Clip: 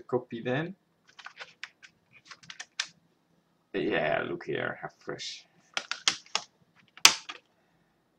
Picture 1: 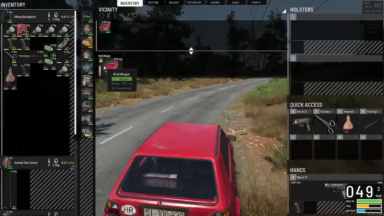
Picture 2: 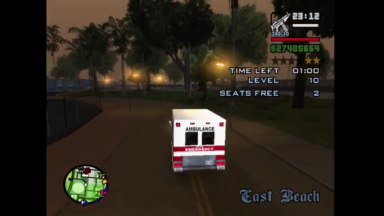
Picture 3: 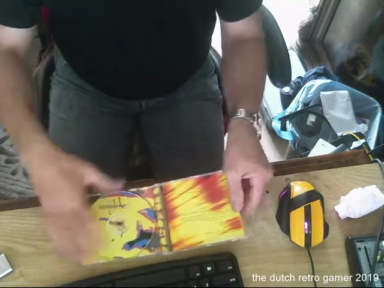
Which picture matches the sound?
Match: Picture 3